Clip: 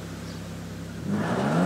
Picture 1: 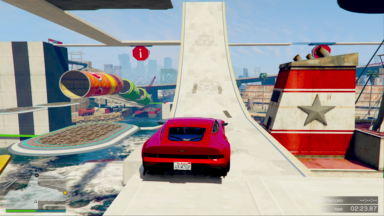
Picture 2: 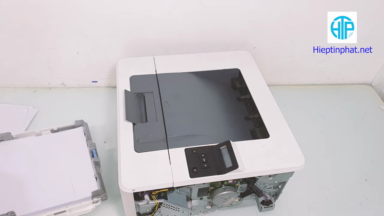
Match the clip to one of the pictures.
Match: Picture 1